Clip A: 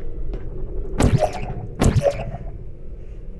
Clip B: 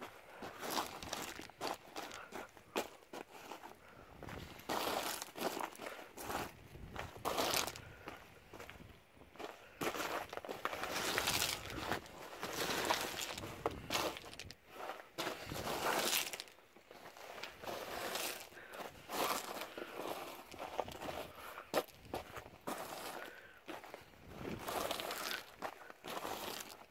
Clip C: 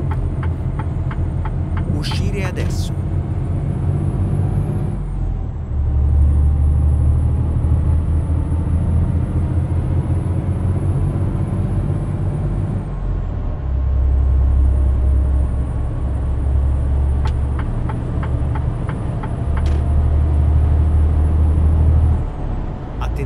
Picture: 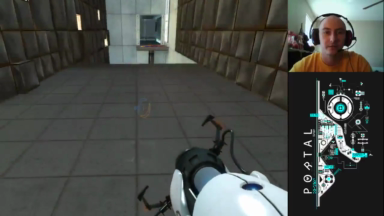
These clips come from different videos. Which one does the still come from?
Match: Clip A